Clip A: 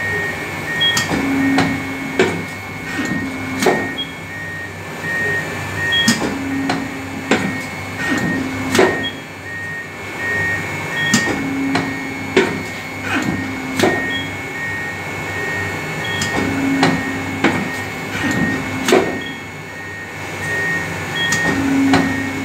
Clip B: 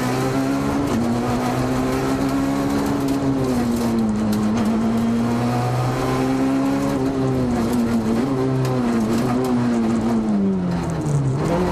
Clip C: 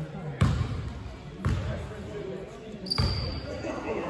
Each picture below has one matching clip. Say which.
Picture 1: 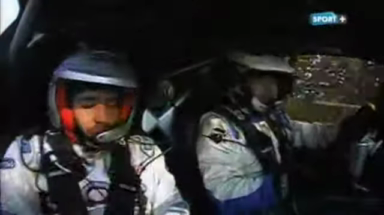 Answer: B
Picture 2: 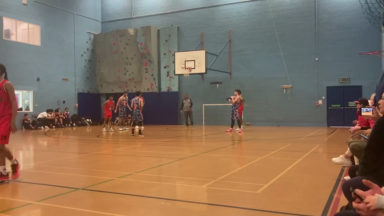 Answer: C